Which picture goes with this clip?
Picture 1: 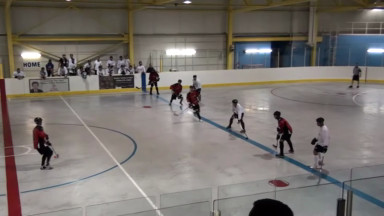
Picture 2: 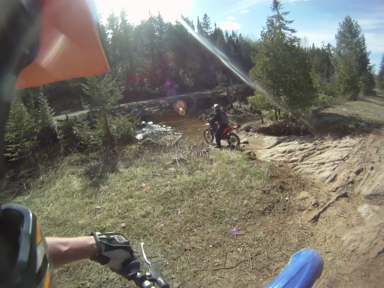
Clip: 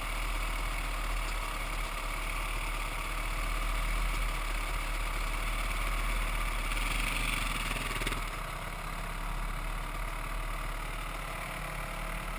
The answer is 2